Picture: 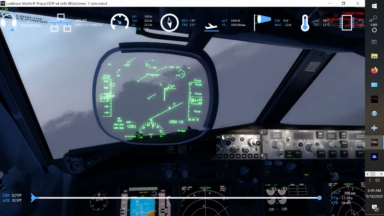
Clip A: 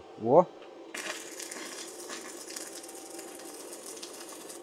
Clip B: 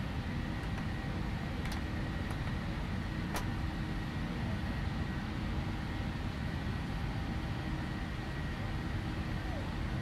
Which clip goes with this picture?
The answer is B